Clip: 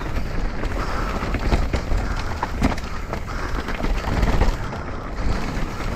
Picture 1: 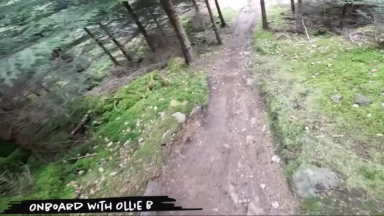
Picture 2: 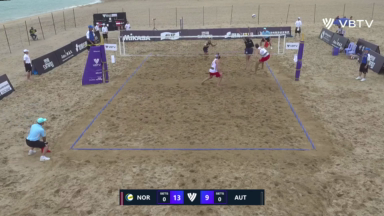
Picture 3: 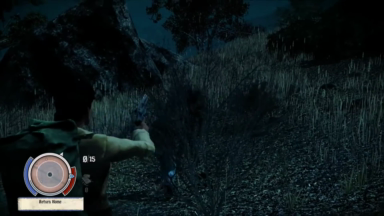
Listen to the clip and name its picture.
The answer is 1